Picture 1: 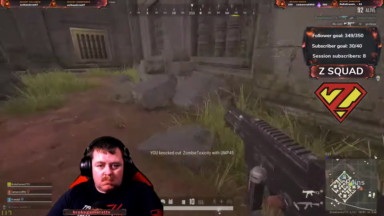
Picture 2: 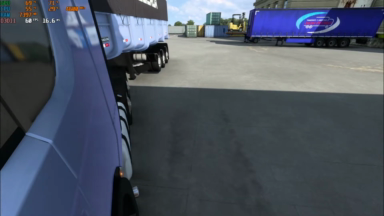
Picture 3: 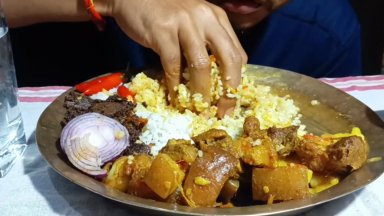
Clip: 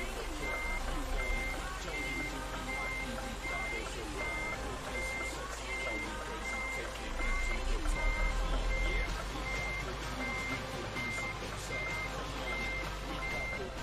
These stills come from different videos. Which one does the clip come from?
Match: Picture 2